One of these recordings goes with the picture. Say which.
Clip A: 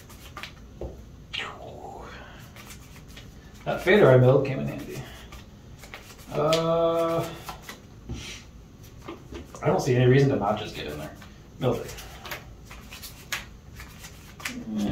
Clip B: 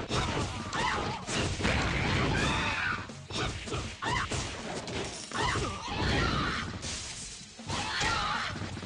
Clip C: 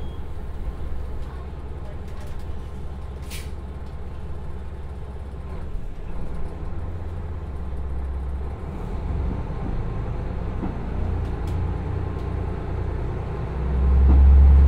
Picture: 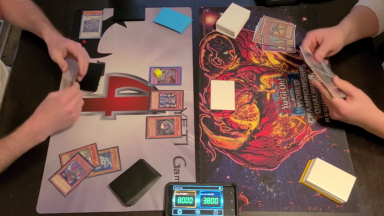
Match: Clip A